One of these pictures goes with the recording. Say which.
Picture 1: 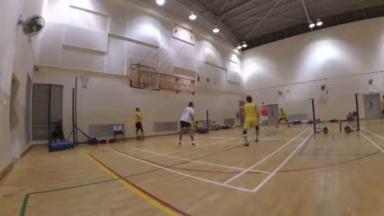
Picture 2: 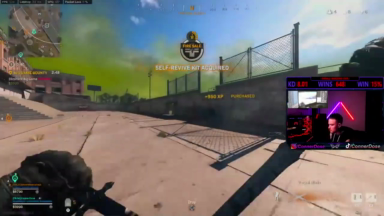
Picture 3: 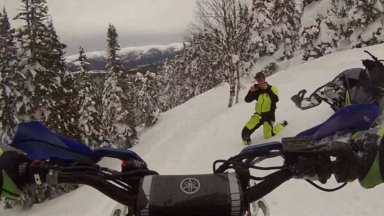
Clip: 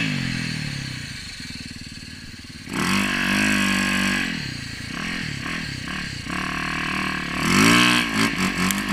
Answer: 3